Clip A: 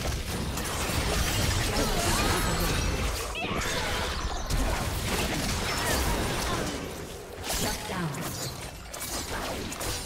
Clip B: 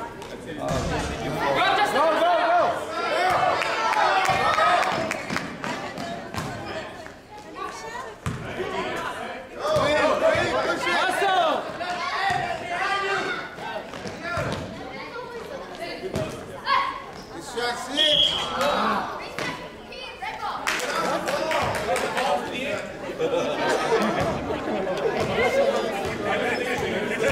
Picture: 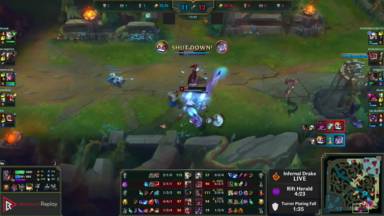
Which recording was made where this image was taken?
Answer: A